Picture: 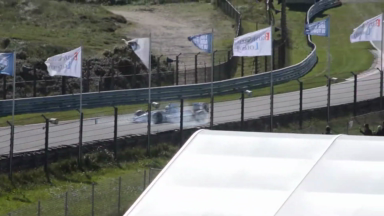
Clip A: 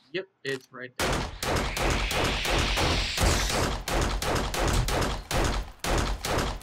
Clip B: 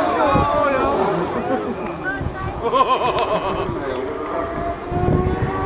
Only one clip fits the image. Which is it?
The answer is B